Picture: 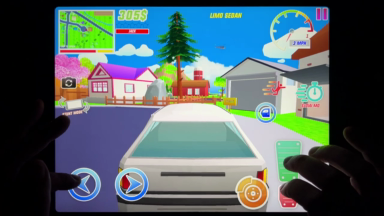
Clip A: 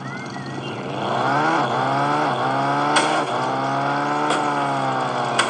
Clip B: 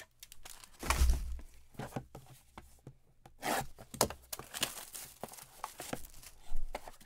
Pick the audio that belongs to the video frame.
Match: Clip A